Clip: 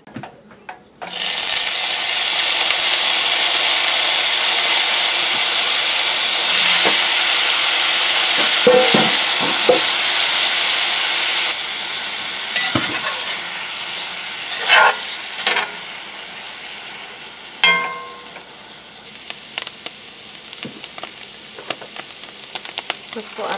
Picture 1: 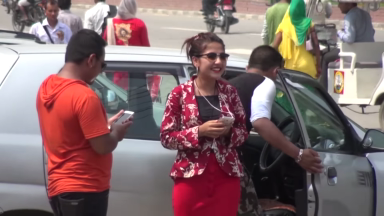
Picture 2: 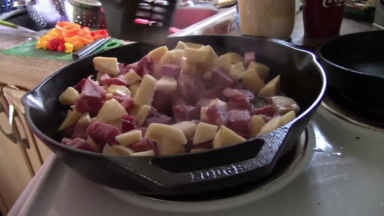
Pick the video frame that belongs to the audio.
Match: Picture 2